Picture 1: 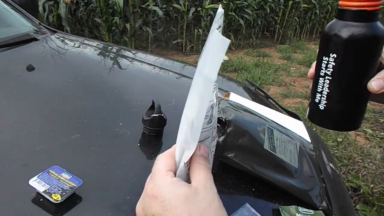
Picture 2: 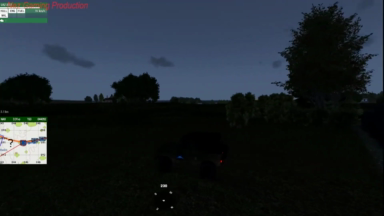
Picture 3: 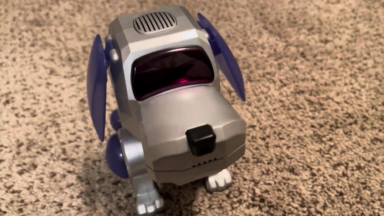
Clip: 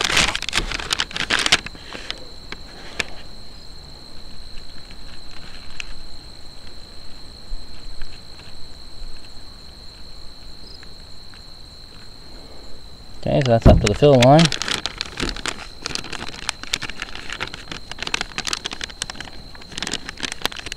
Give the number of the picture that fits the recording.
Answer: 1